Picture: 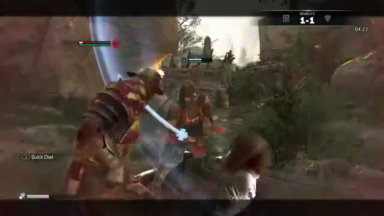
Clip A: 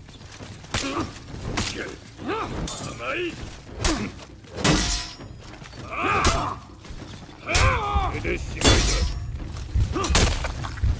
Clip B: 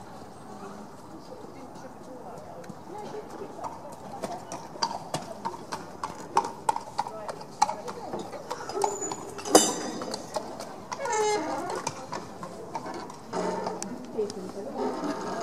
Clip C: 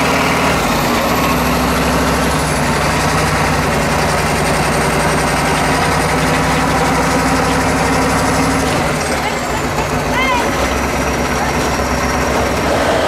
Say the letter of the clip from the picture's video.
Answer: A